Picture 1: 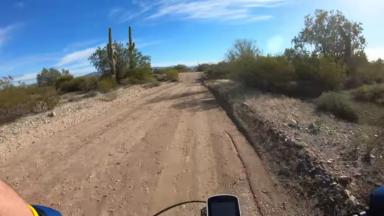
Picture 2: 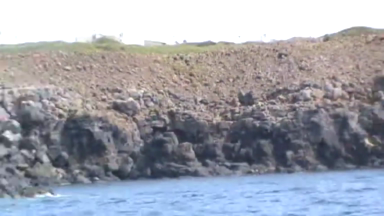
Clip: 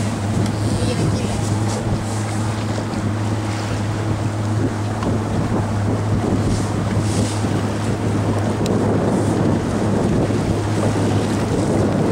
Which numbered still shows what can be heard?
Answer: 2